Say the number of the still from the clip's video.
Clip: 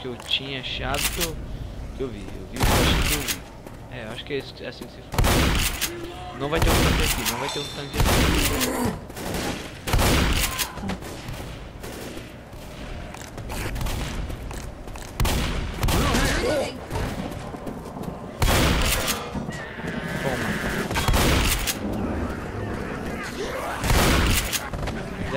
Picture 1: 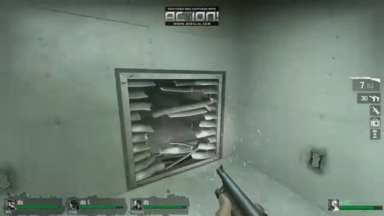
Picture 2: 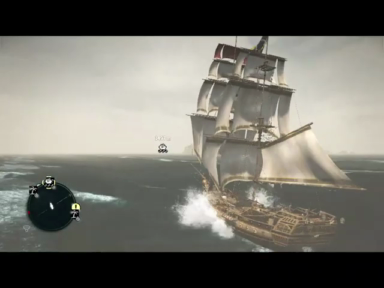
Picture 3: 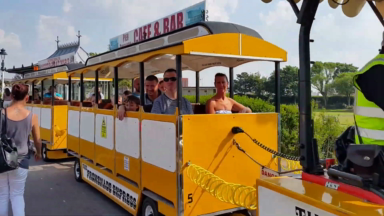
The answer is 1